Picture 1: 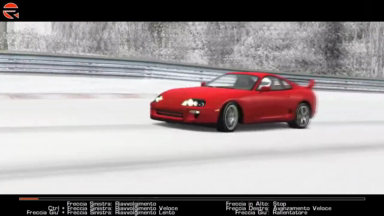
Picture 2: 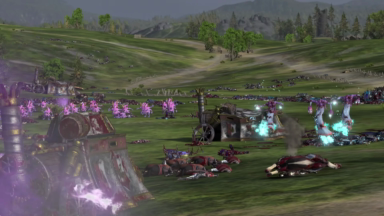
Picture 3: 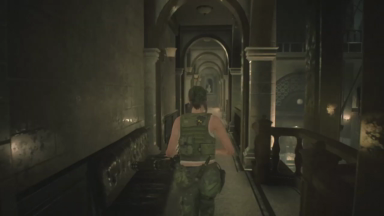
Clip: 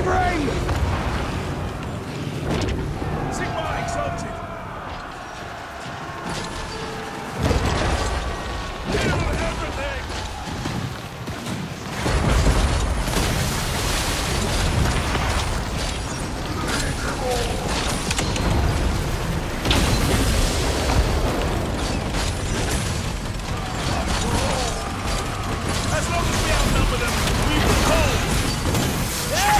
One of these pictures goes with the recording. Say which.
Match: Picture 2